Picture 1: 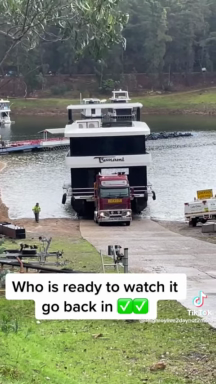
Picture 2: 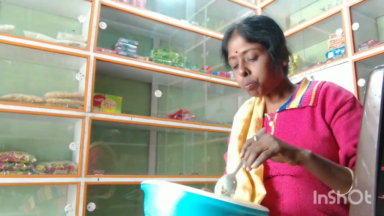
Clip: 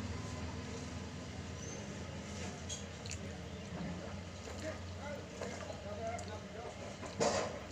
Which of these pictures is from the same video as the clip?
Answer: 2